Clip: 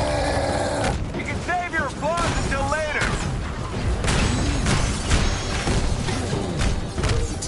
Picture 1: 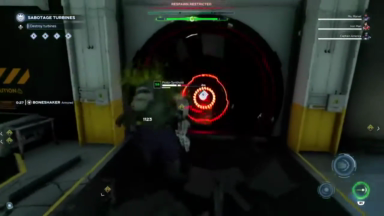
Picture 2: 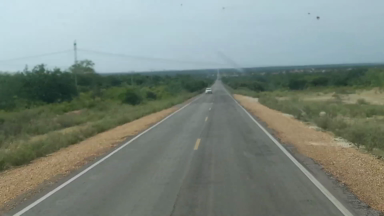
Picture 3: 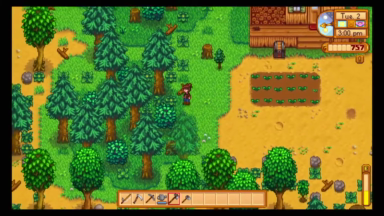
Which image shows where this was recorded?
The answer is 1